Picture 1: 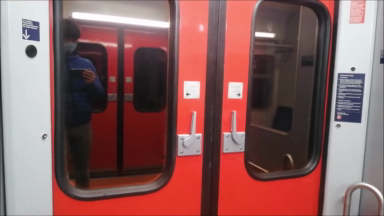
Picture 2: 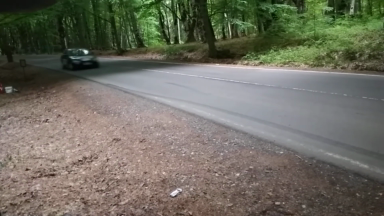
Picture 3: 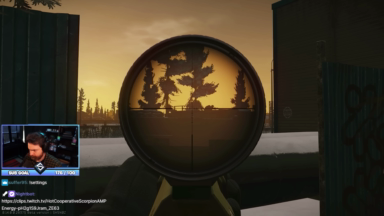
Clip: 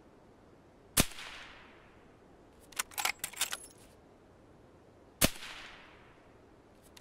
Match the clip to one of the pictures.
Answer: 3